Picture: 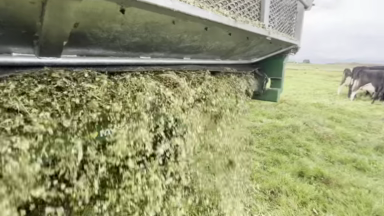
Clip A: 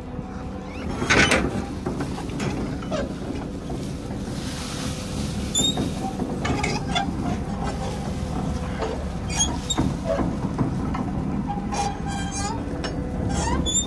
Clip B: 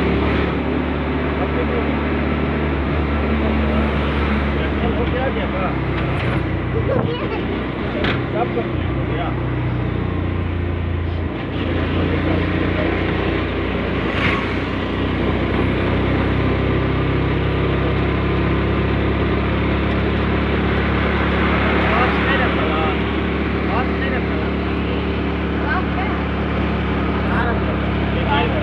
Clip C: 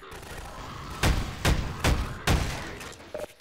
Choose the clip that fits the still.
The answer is A